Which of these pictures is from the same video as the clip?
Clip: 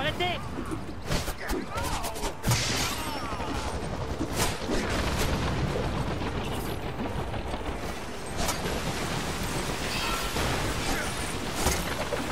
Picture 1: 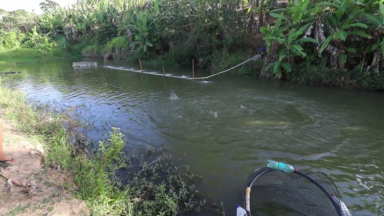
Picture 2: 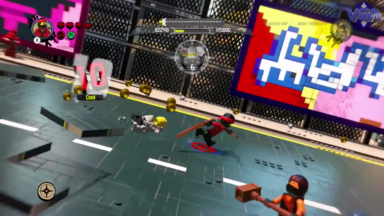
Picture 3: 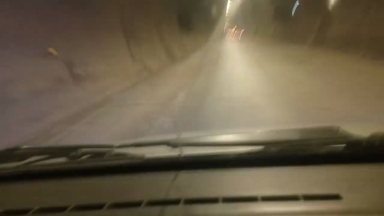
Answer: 2